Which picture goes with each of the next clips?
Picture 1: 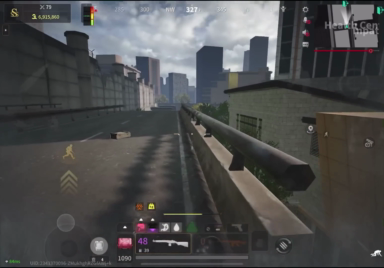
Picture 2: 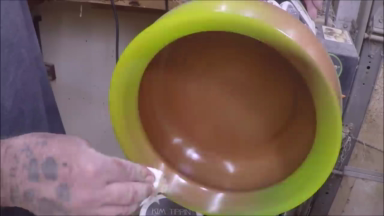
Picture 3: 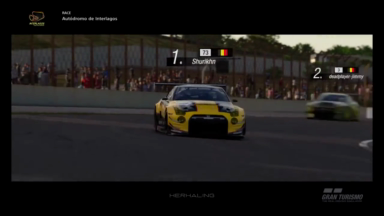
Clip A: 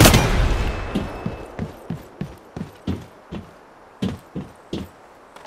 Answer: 1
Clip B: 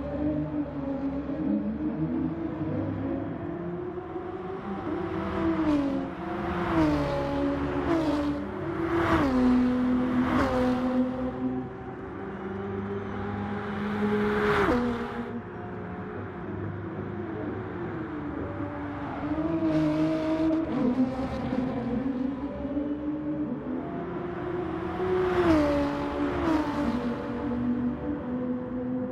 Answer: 3